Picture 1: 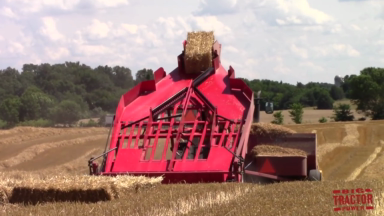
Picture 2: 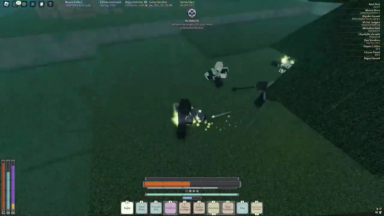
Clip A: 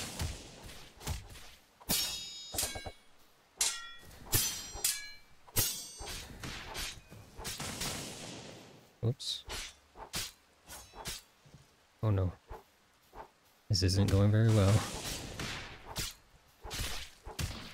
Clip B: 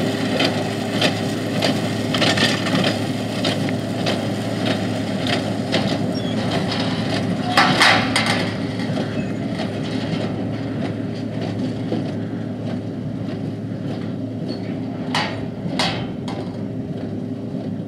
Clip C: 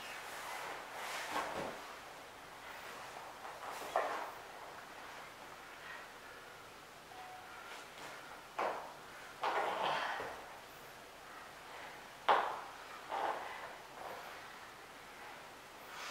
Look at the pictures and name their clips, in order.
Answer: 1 B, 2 A